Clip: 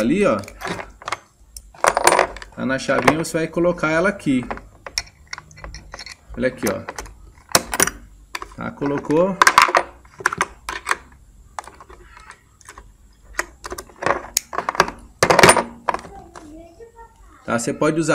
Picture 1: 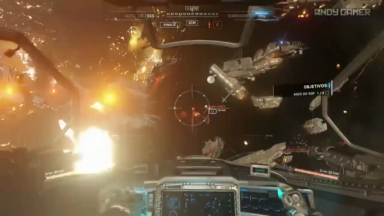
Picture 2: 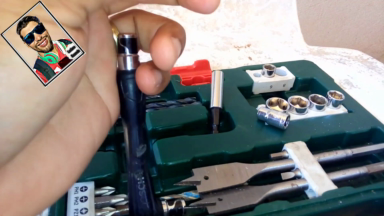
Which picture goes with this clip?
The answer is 2